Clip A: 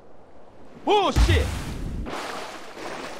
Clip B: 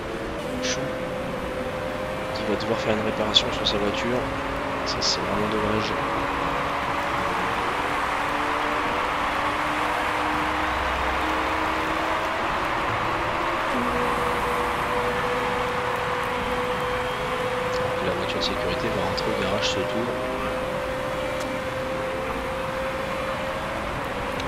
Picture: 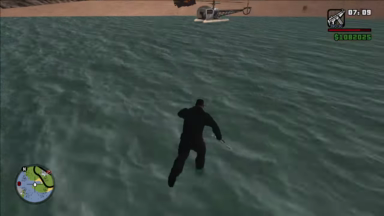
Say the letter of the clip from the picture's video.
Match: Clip A